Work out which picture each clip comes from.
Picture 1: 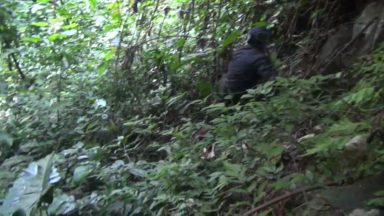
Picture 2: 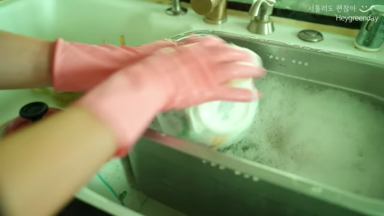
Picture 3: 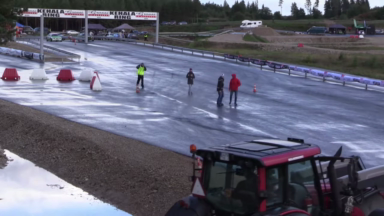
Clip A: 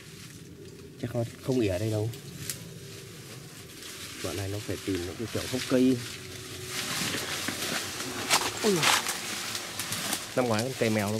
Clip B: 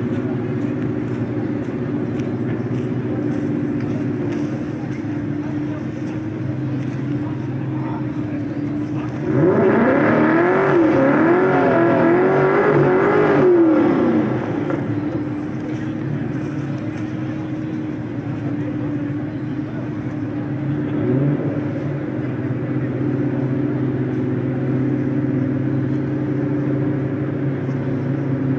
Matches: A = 1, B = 3